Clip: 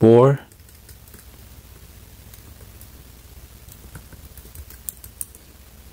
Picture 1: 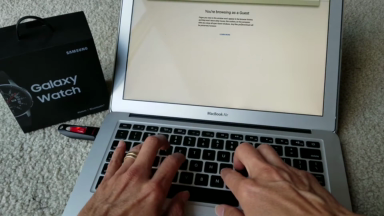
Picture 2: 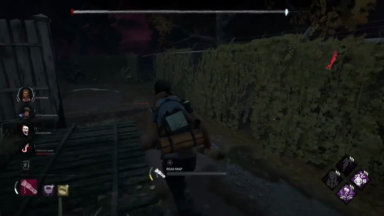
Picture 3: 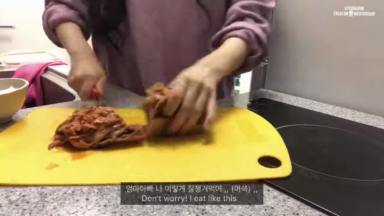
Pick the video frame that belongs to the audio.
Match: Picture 1